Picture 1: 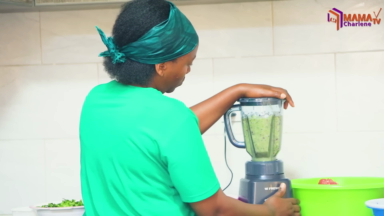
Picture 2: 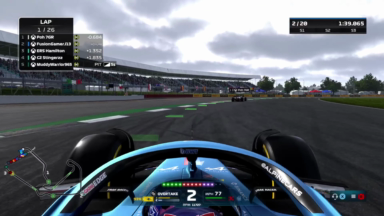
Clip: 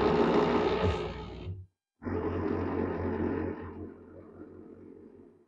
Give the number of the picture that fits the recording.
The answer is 1